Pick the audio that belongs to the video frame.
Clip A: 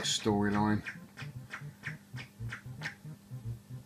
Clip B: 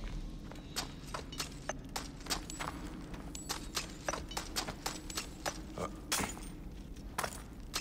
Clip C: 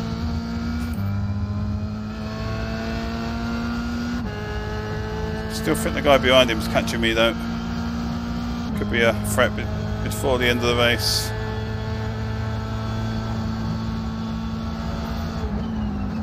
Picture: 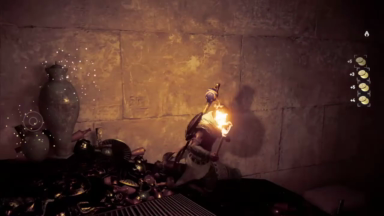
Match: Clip B